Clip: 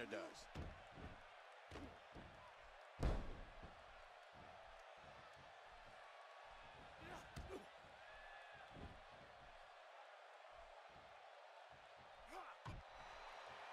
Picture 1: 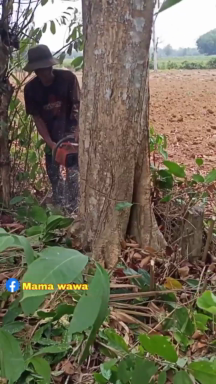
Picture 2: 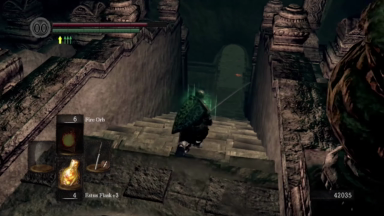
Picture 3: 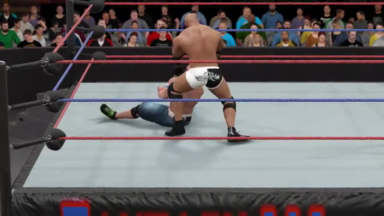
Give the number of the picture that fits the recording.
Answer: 3